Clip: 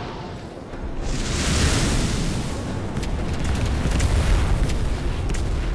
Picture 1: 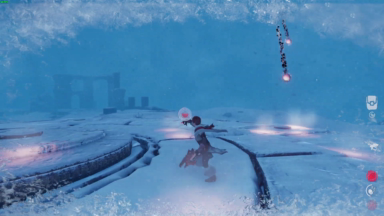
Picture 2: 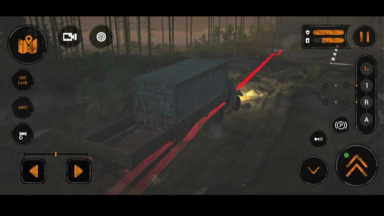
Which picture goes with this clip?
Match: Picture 1